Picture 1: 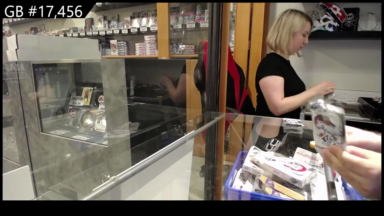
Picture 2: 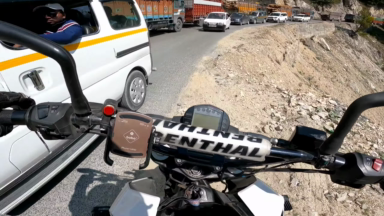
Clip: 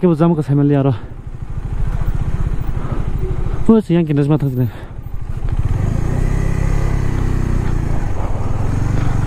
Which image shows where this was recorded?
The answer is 2